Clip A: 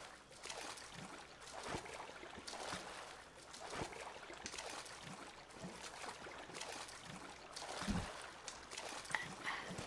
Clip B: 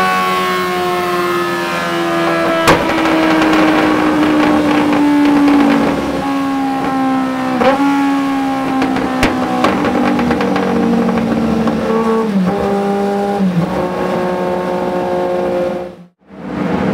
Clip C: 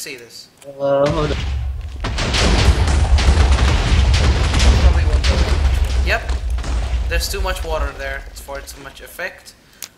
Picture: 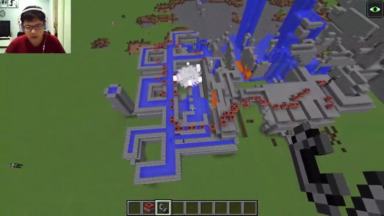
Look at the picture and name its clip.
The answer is C